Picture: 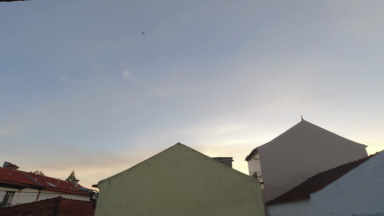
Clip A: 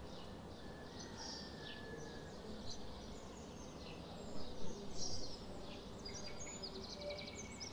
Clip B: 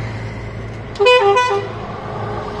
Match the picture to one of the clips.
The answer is A